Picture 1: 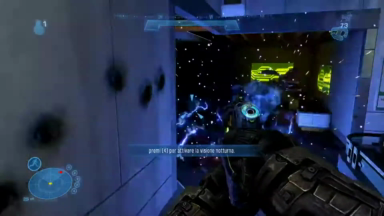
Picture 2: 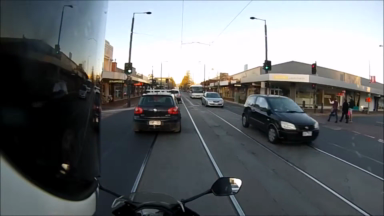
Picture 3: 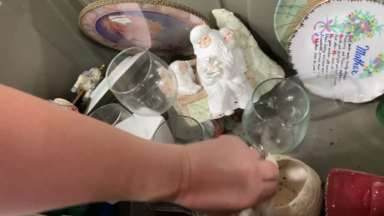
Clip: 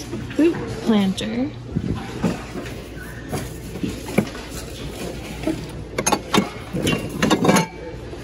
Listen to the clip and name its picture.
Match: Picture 3